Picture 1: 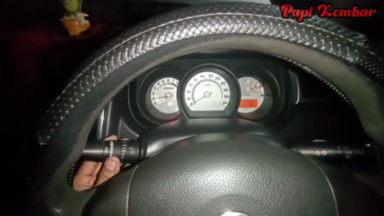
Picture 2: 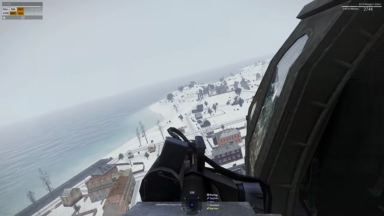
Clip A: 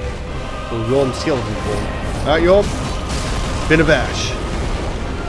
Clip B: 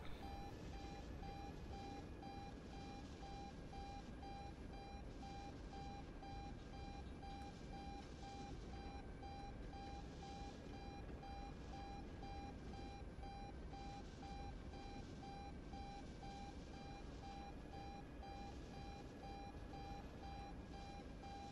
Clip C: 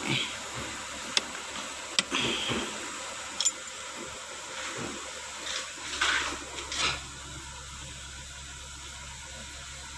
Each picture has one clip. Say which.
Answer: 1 C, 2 B